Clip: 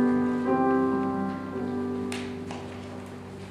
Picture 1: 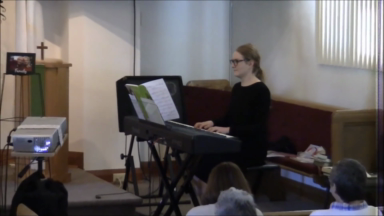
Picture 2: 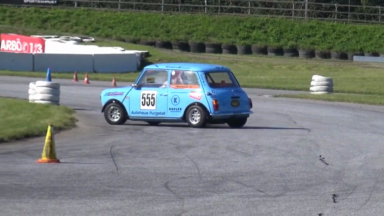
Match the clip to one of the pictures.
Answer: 1